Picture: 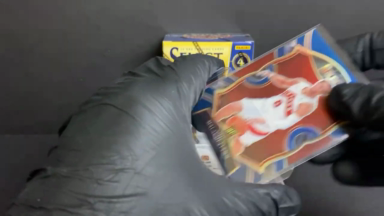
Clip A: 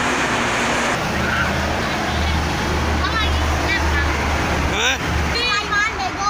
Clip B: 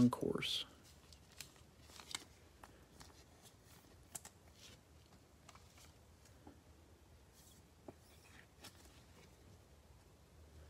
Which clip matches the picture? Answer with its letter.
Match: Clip B